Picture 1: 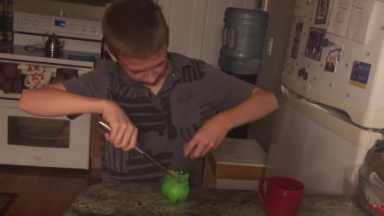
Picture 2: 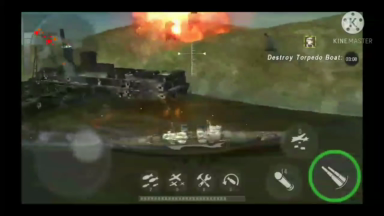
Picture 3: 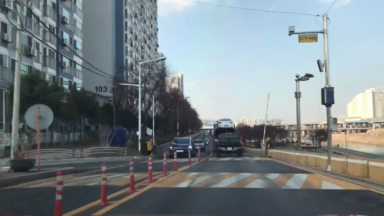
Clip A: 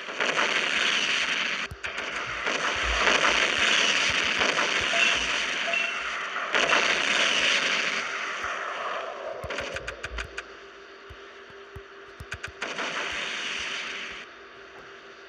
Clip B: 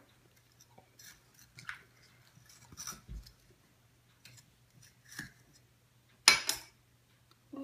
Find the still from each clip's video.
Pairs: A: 2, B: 1